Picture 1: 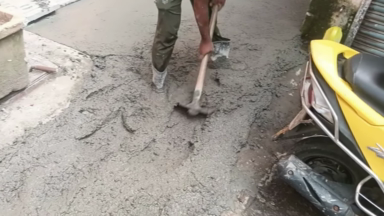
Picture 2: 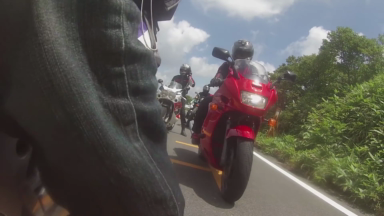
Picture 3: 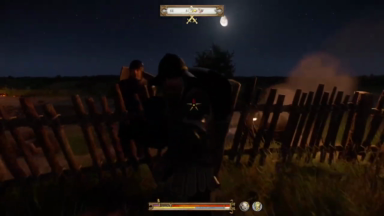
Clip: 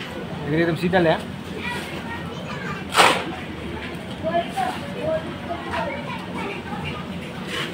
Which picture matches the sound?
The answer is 1